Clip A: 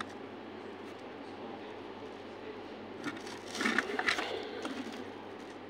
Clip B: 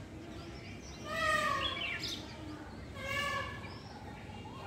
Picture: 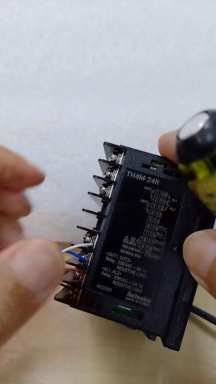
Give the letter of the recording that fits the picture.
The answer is A